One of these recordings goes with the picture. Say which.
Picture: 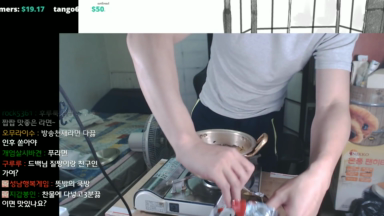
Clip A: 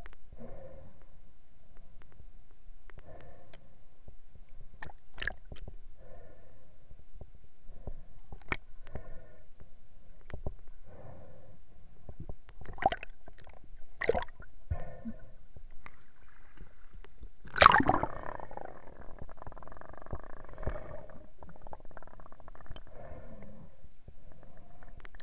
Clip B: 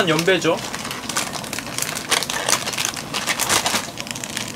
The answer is B